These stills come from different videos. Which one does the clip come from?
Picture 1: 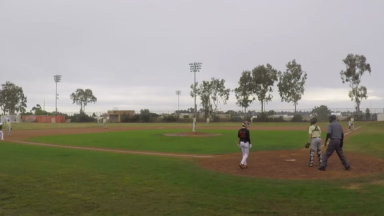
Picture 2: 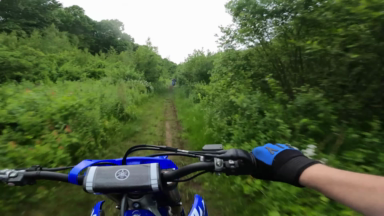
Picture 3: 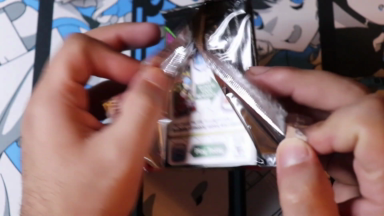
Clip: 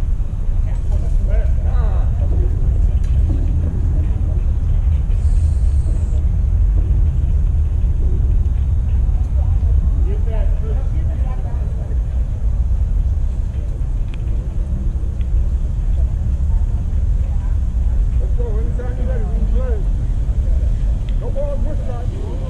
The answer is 1